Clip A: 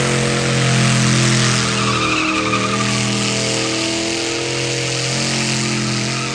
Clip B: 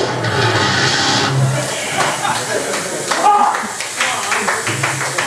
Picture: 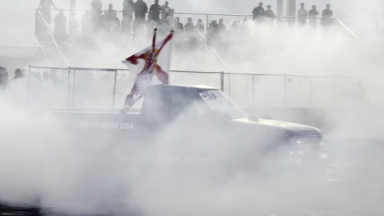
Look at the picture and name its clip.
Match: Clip A